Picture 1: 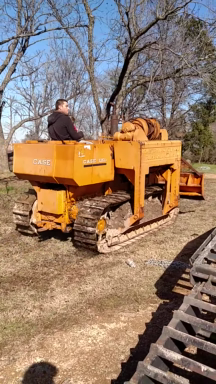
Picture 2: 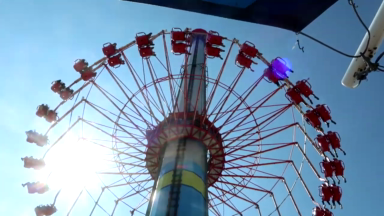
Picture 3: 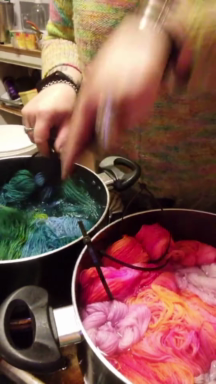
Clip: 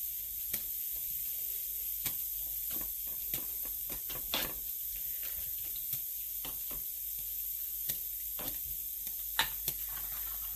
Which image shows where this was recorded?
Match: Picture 3